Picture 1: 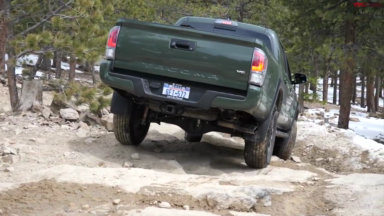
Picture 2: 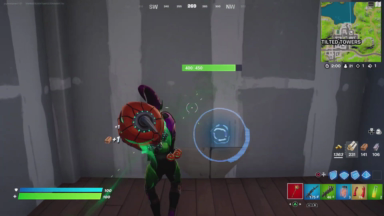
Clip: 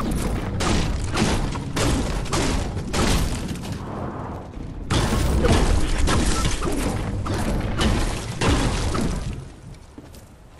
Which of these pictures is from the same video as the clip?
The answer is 2